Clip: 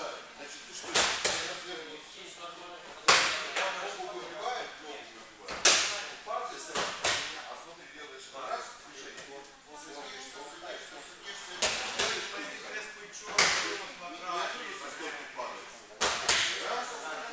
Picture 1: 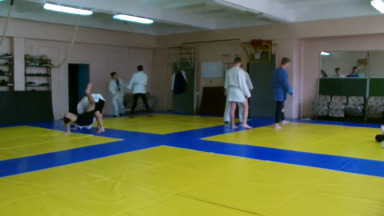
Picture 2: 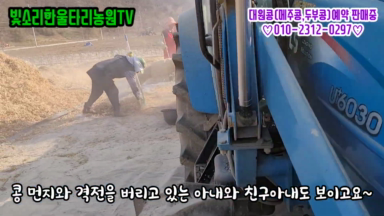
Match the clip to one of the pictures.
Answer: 1